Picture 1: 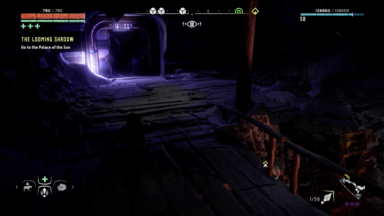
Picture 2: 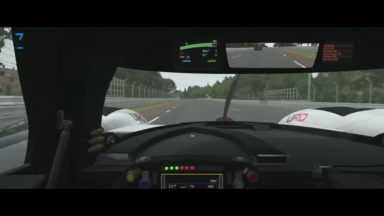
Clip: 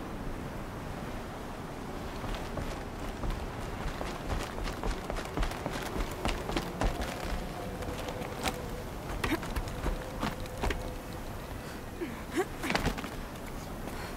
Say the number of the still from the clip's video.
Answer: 1